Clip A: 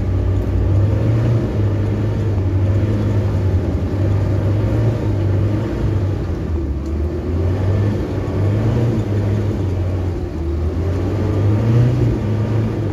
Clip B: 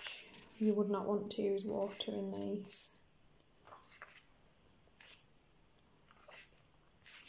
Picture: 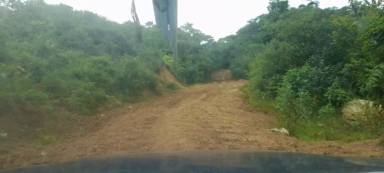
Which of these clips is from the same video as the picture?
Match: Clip A